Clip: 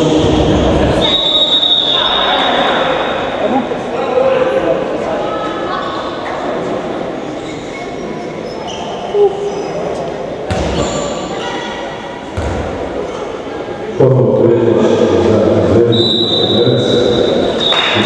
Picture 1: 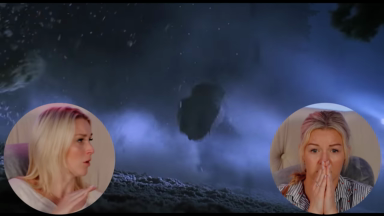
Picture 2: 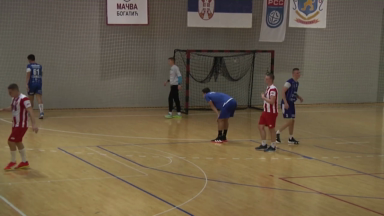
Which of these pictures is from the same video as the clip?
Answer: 2